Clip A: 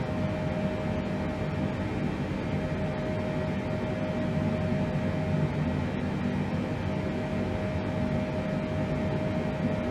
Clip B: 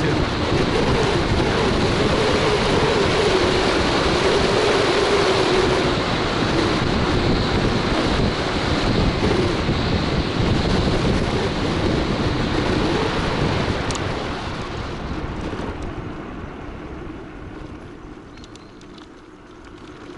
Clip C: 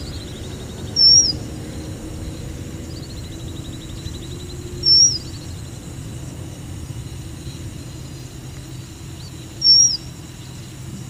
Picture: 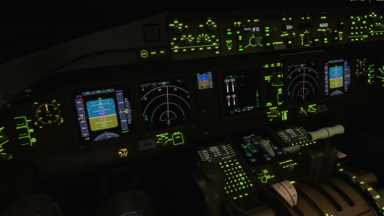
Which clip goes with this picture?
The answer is A